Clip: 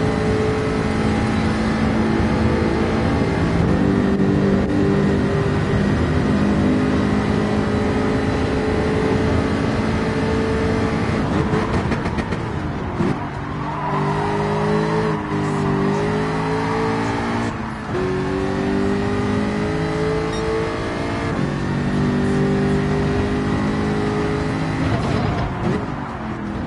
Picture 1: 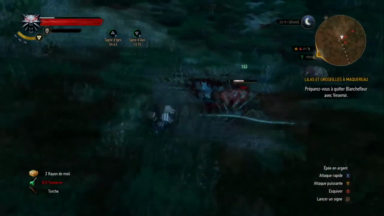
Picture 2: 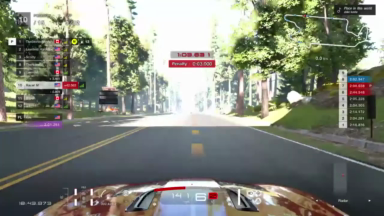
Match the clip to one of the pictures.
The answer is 2